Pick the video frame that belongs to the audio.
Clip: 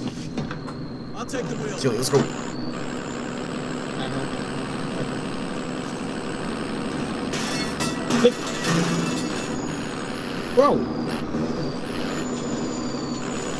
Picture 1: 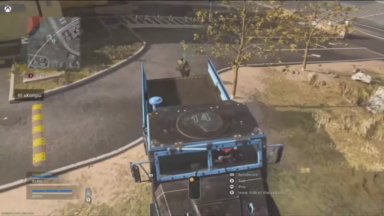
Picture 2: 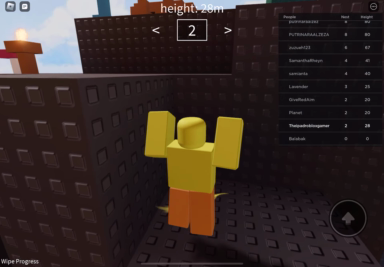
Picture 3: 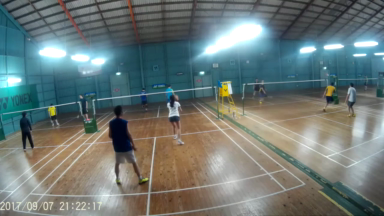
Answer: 1